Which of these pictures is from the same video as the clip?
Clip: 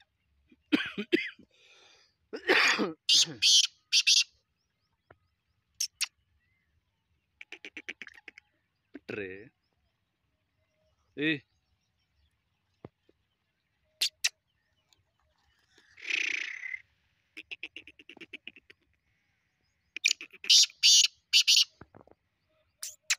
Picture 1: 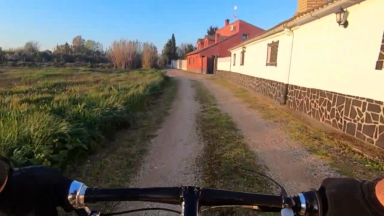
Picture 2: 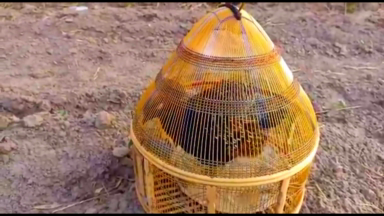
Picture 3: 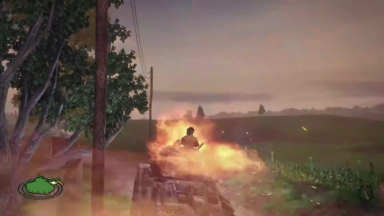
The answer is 2